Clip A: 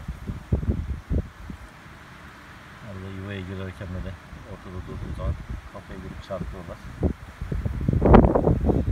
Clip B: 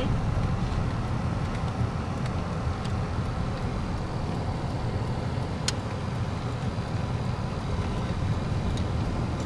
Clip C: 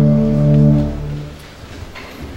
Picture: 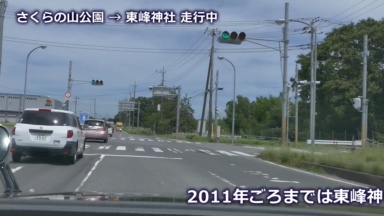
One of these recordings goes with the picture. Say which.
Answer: B